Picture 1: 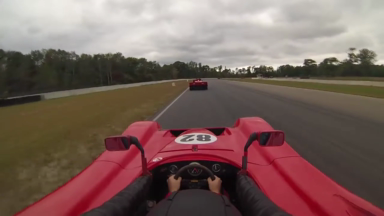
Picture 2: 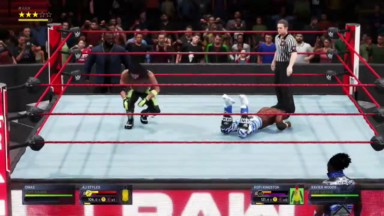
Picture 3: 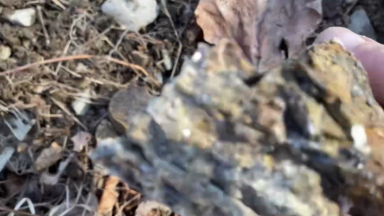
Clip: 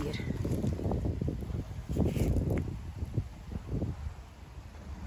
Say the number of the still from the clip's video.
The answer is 3